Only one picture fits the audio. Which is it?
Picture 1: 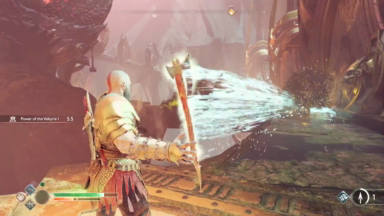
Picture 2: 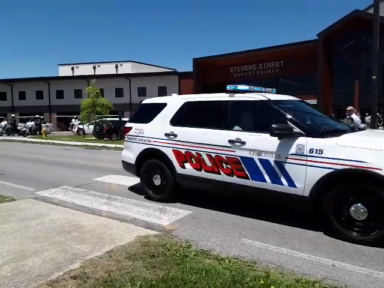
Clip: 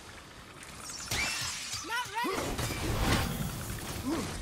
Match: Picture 1